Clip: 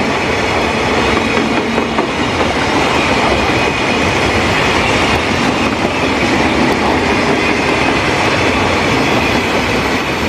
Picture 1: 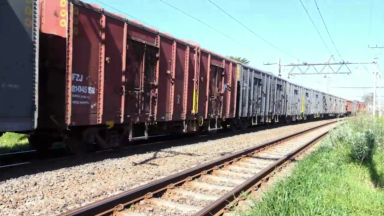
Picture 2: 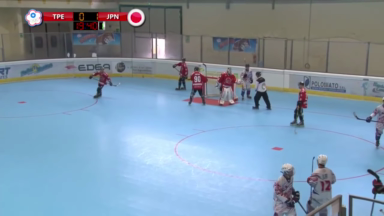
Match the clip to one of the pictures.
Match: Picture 1